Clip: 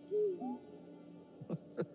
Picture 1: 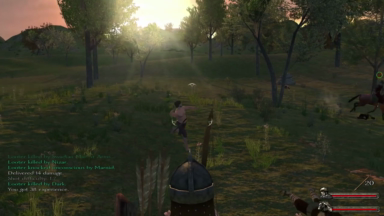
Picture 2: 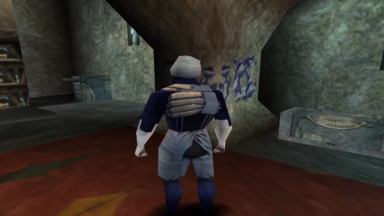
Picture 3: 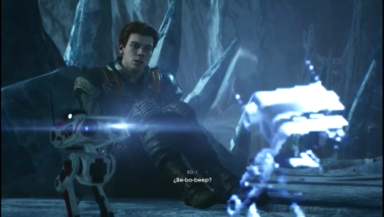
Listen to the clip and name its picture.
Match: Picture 3